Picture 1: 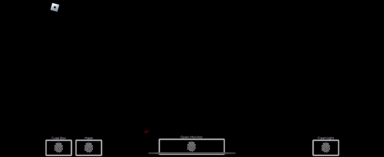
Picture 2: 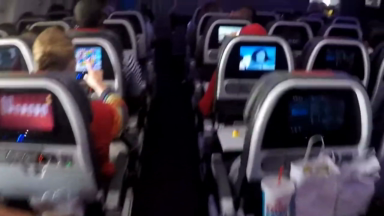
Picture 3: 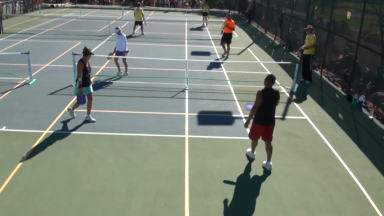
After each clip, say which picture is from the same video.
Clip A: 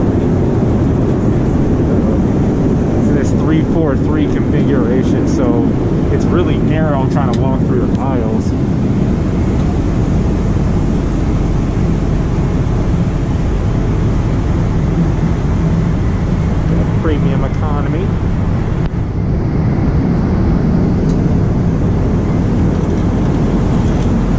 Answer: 2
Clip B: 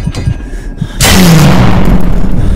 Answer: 1